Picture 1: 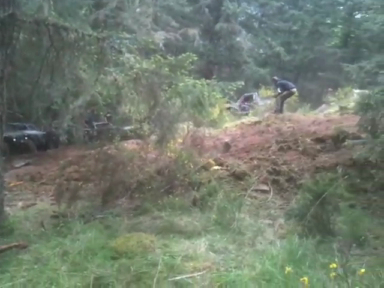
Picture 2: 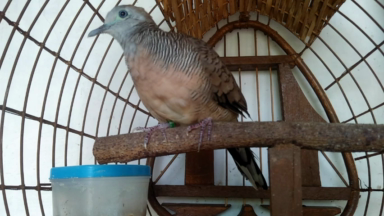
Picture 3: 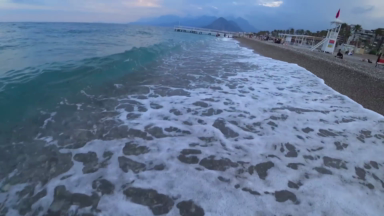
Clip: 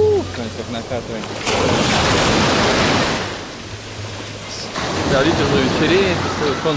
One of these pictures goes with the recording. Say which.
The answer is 3